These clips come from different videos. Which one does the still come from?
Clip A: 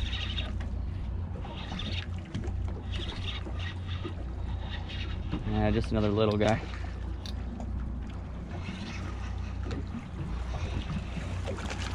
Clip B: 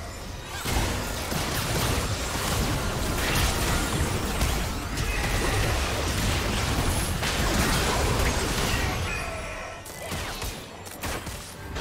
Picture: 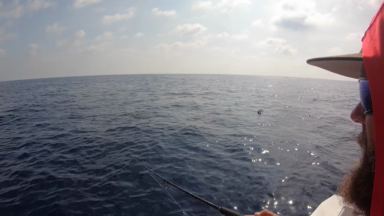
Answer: A